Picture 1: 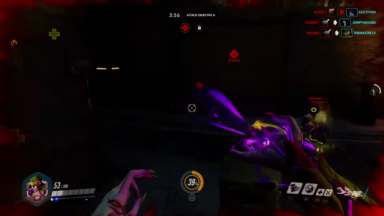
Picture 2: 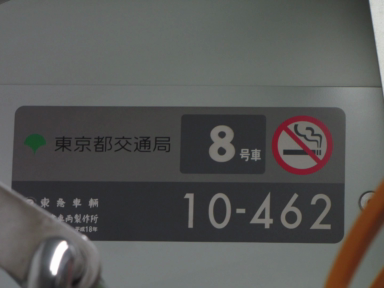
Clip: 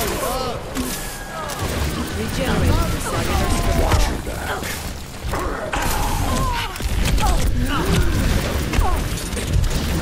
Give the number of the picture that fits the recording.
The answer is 1